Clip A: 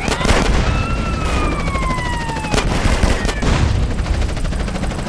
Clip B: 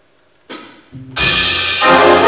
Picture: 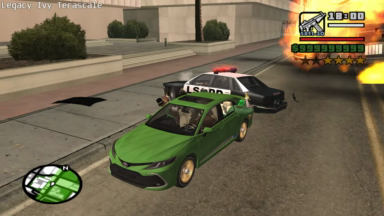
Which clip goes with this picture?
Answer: A